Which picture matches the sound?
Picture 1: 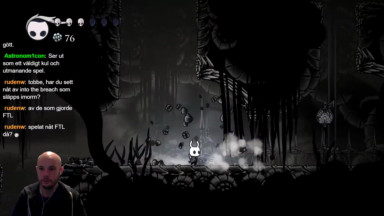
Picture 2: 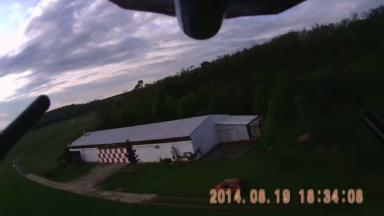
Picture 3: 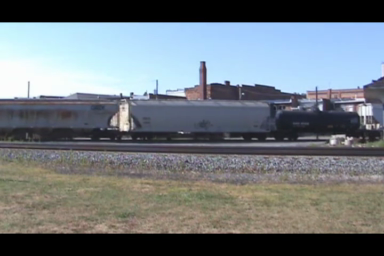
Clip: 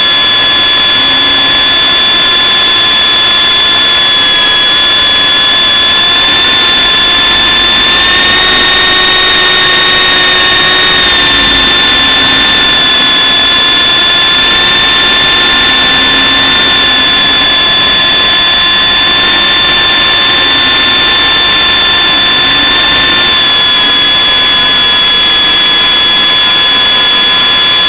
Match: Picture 2